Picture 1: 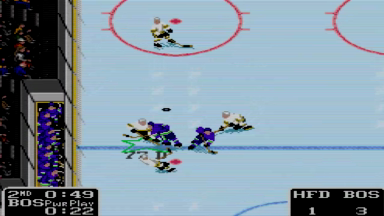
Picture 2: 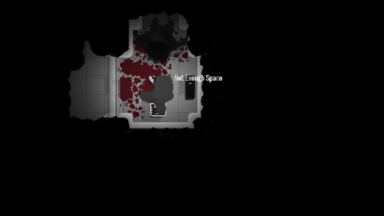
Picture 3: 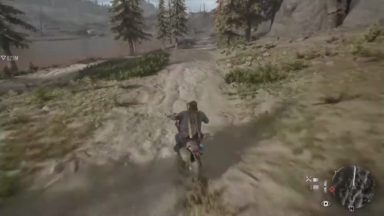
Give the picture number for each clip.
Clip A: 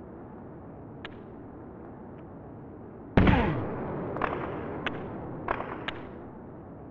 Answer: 1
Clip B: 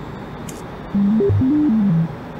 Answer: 2